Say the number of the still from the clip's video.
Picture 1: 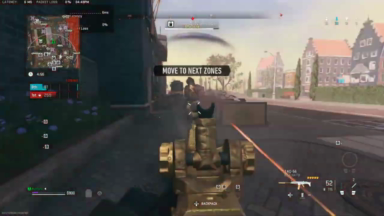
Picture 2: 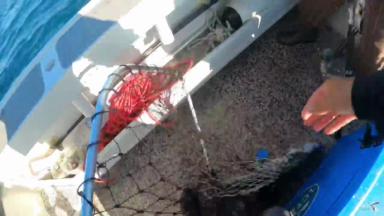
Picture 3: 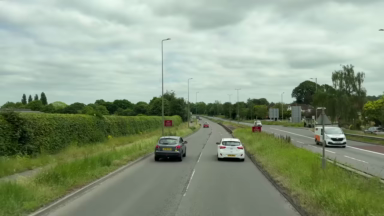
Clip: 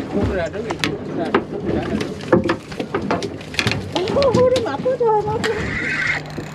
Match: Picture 2